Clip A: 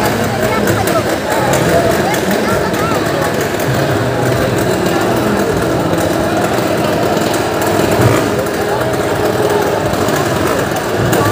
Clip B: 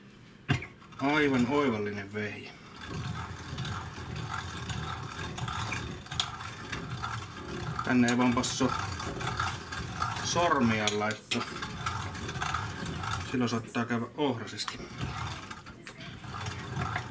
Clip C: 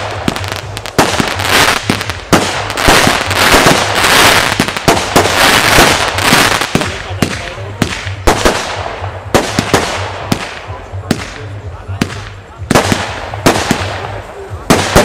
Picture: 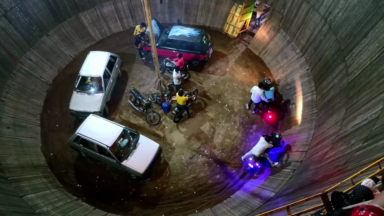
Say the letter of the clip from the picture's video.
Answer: A